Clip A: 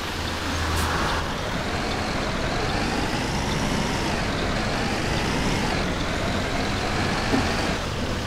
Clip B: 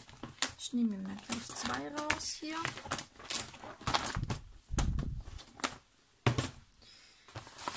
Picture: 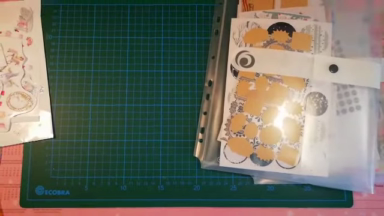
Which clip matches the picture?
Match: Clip B